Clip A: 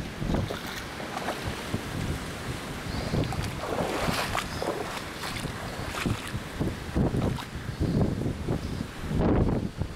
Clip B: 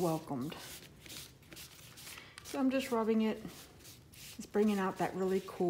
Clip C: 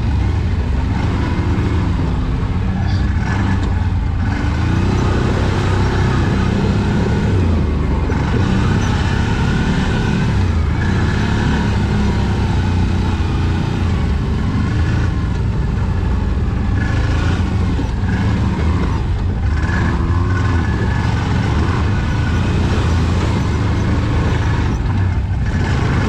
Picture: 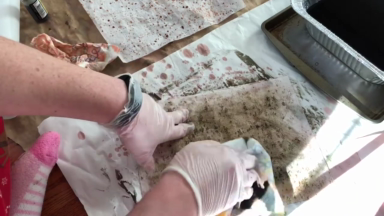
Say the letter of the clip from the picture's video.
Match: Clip B